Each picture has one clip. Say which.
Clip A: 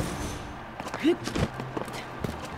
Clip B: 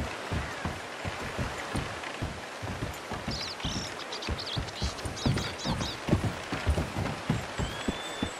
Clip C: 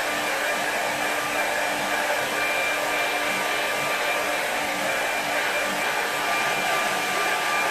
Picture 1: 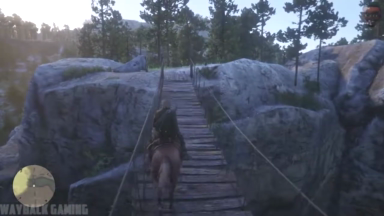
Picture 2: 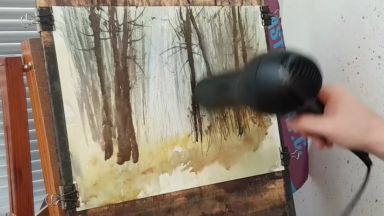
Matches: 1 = B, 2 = C